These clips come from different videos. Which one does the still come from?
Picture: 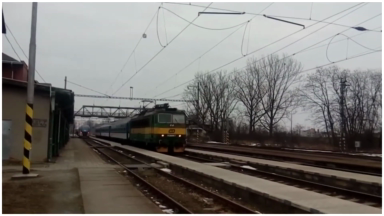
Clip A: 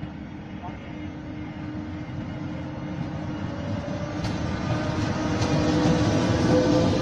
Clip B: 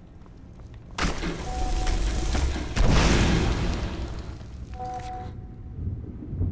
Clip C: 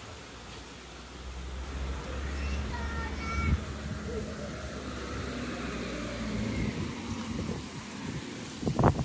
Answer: A